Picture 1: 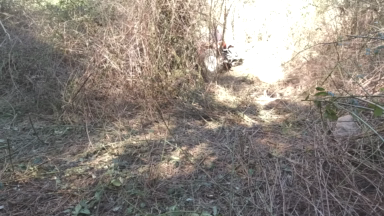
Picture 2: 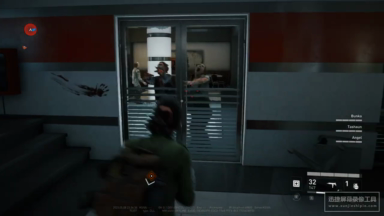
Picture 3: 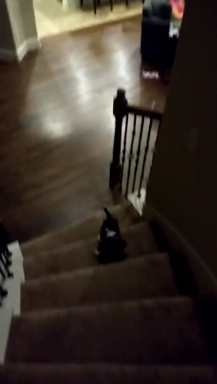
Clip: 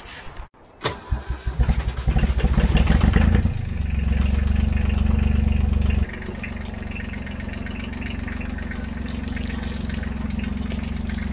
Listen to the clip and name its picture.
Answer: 1